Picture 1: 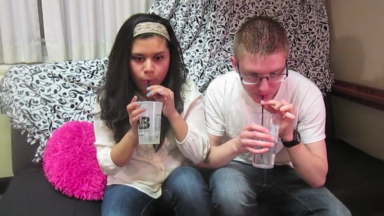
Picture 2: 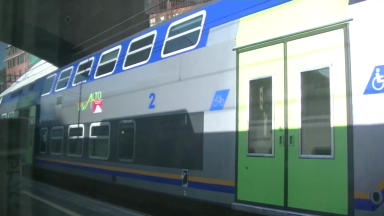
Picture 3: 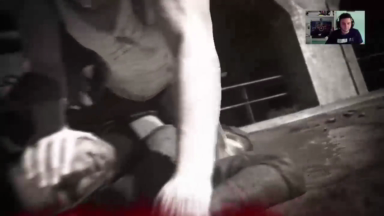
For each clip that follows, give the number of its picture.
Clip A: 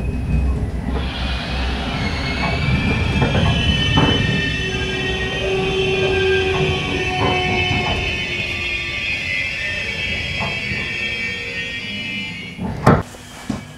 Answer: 2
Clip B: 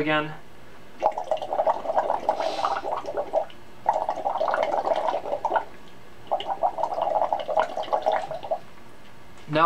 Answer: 1